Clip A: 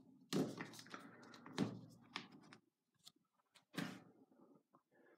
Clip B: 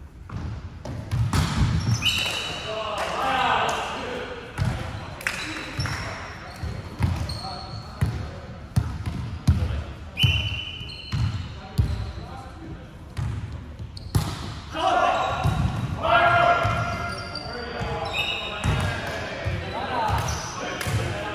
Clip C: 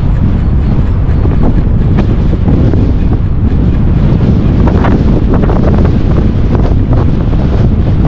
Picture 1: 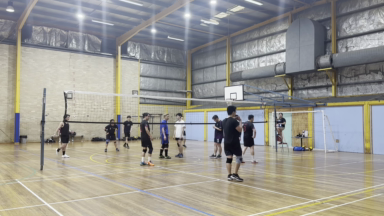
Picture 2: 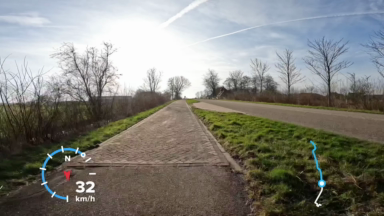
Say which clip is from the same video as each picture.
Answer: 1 B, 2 C